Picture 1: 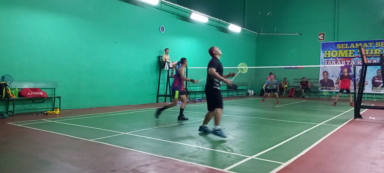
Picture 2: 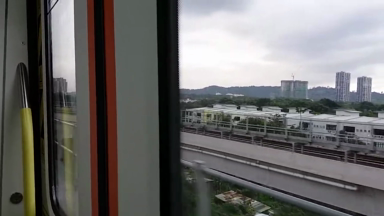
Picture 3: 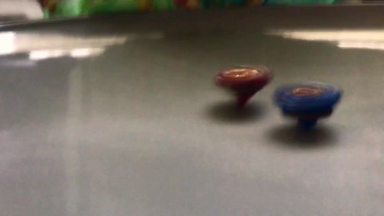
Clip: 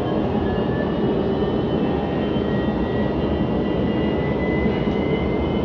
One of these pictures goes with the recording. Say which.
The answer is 2